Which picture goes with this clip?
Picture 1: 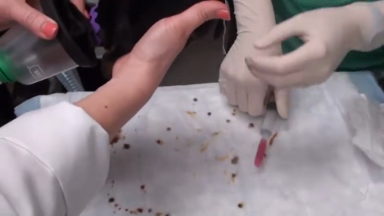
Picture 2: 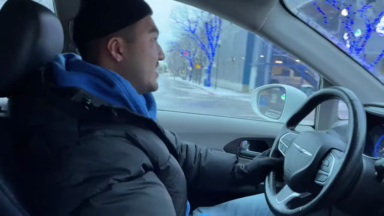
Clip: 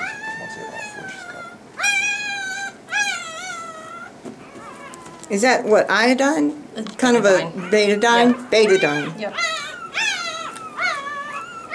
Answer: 1